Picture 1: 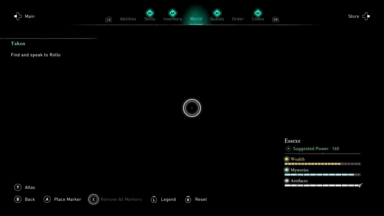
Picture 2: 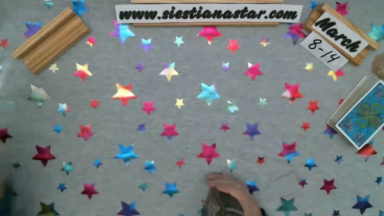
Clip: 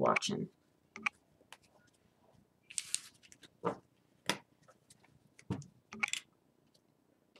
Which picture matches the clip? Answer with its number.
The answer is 2